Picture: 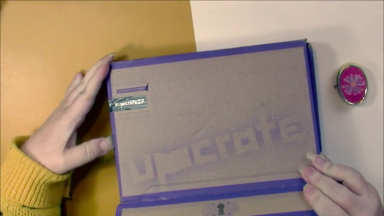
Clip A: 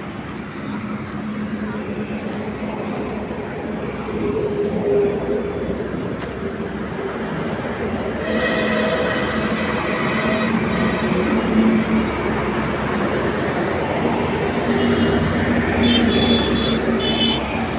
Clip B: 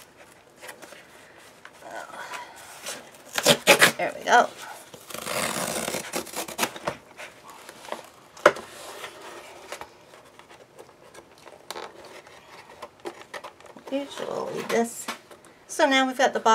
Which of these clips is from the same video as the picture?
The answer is B